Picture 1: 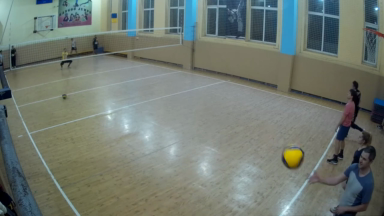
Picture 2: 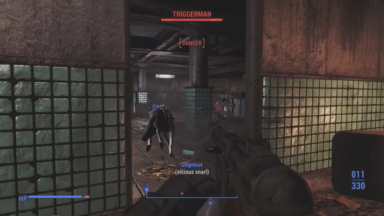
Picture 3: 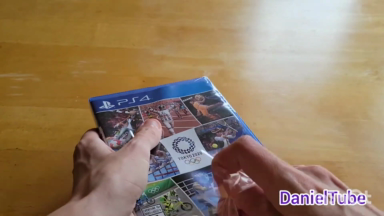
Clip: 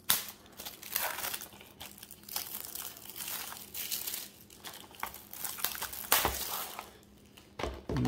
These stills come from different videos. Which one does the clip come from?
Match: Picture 3